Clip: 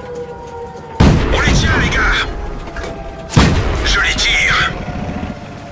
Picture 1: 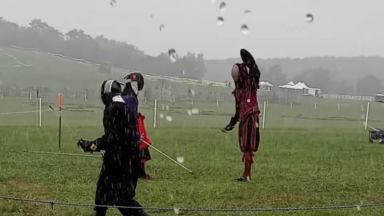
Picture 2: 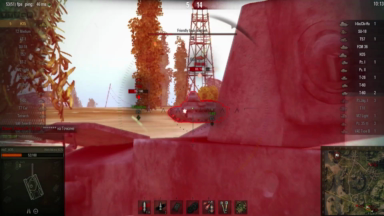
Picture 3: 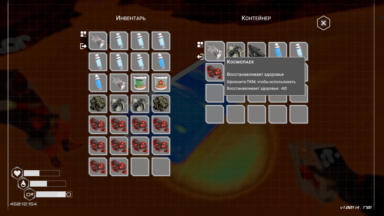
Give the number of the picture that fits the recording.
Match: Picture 2